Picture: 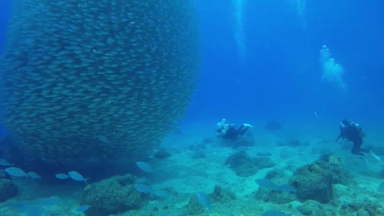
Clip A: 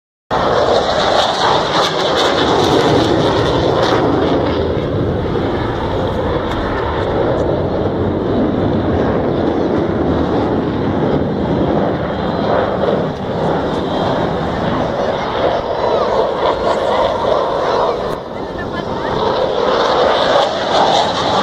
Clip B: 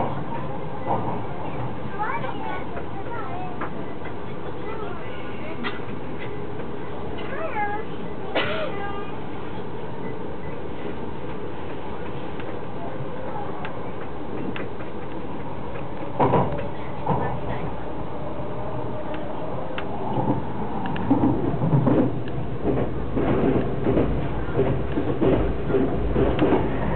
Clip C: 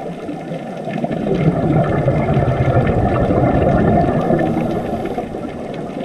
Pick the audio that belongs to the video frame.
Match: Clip C